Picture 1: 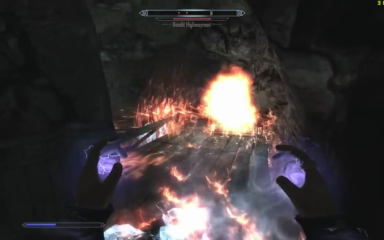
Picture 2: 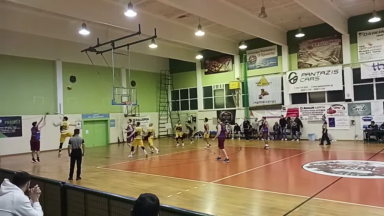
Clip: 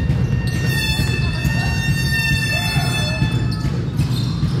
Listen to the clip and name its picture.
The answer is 2